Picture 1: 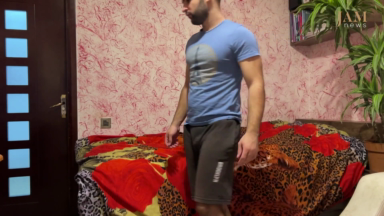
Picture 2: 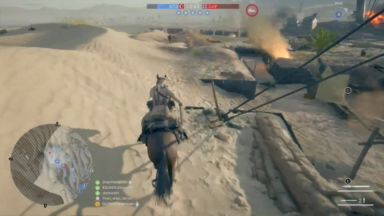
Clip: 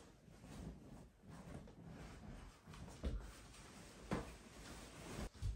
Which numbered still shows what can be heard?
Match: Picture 1